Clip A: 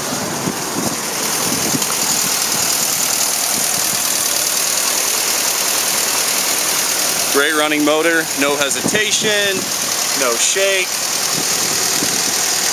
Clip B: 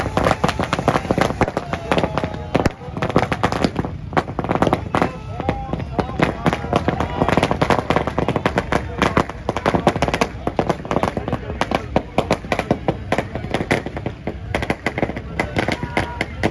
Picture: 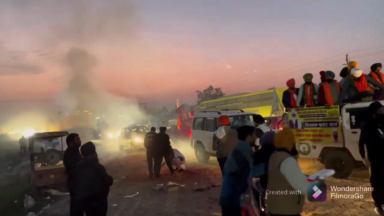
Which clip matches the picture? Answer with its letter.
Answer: B